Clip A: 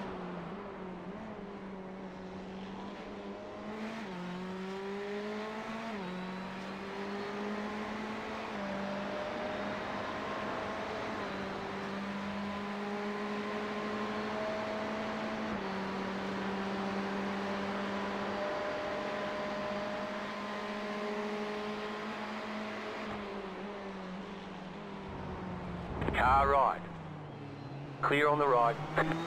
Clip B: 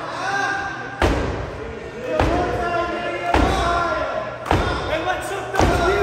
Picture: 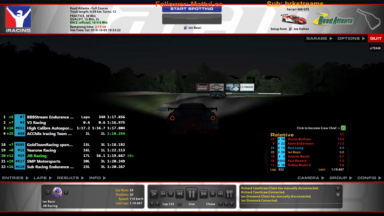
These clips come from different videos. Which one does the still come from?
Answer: A